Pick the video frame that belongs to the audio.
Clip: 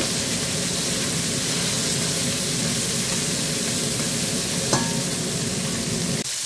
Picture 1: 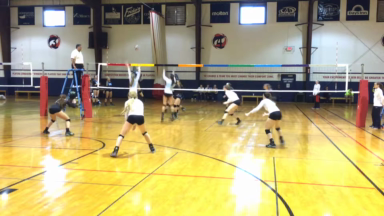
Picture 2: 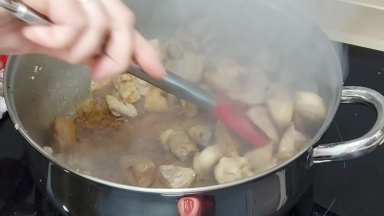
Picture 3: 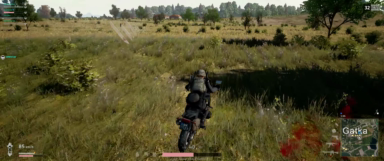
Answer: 2